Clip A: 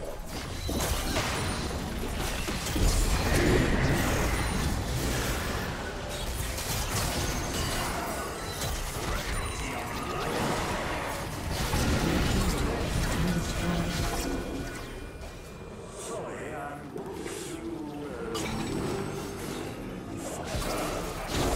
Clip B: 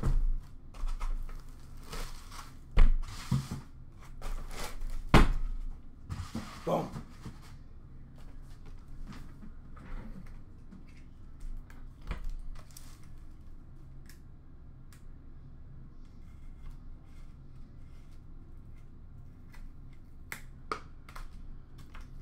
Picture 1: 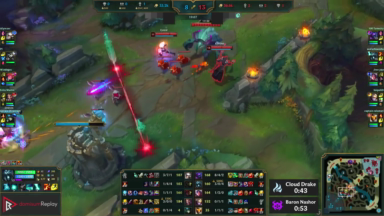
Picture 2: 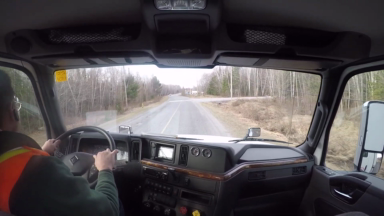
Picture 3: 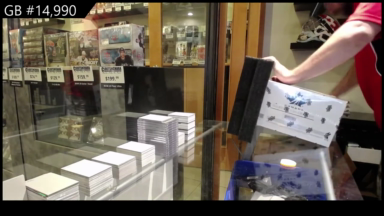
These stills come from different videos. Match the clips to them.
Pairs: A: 1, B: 3